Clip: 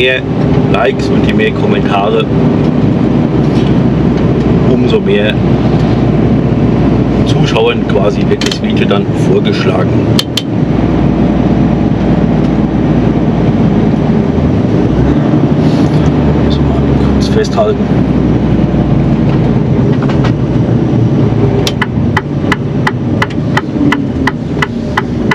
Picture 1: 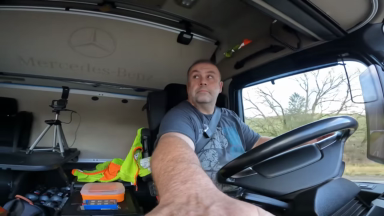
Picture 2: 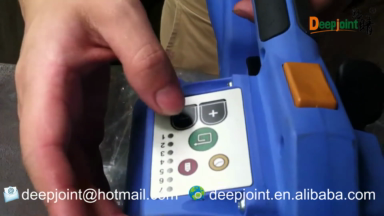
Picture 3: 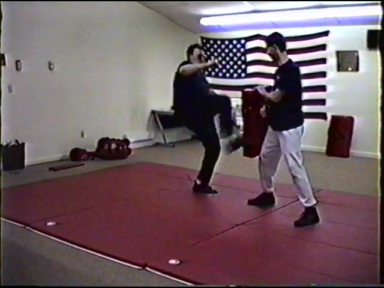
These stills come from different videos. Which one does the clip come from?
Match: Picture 1